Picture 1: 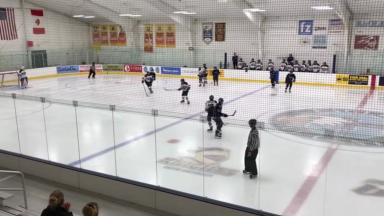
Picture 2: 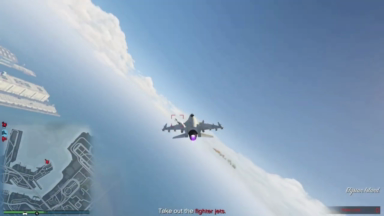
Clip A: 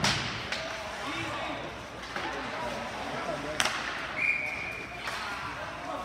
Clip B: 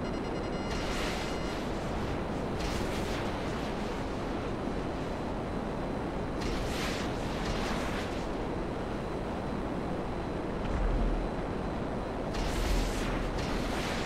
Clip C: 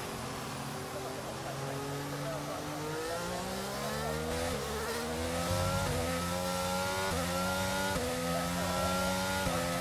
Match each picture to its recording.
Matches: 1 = A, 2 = B